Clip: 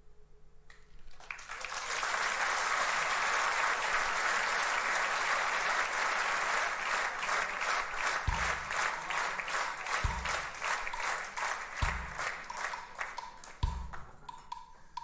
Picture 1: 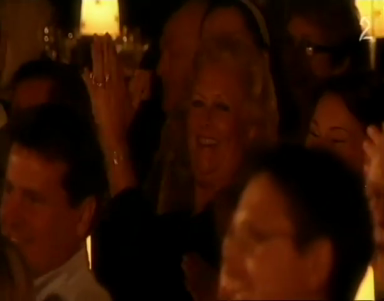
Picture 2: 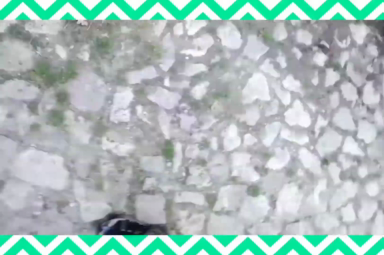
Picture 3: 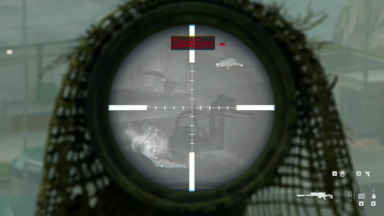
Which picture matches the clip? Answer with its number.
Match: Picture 1